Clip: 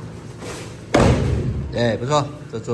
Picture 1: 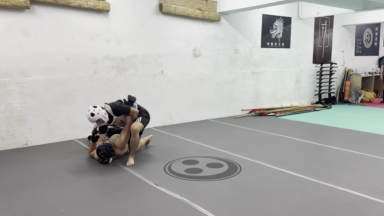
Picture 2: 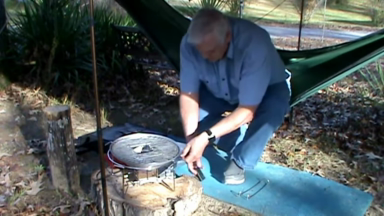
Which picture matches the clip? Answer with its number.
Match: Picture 1